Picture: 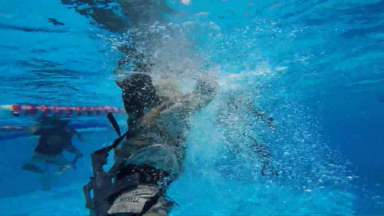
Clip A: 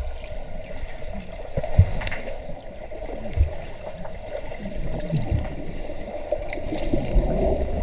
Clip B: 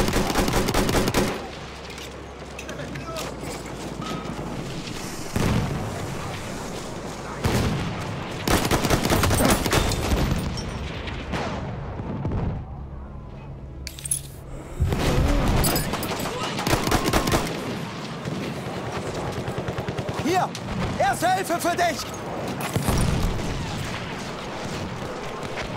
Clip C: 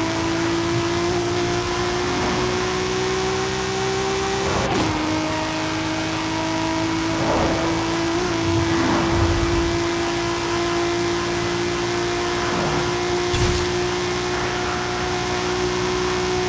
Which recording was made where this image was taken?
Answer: A